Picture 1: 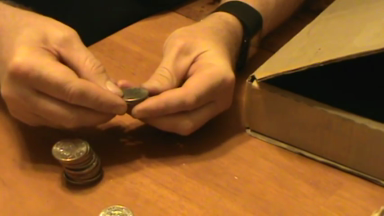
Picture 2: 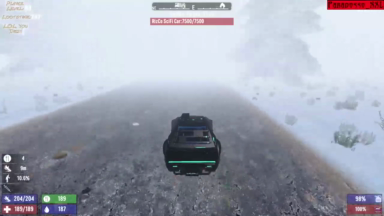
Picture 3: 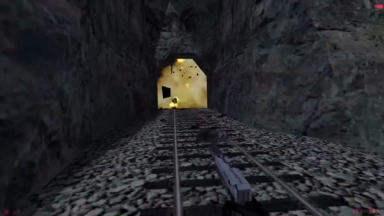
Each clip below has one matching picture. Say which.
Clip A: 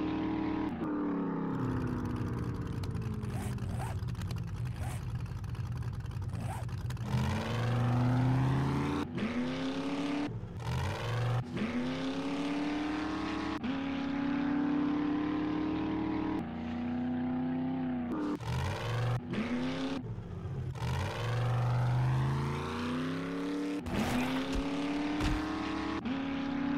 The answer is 2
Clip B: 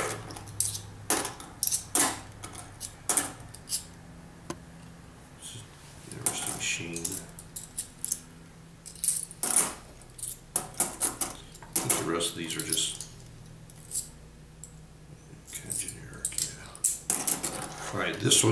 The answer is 1